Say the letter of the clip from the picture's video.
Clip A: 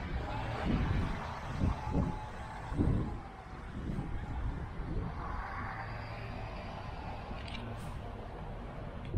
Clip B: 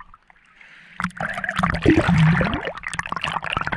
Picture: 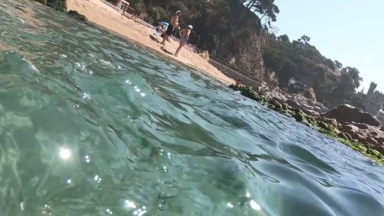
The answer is B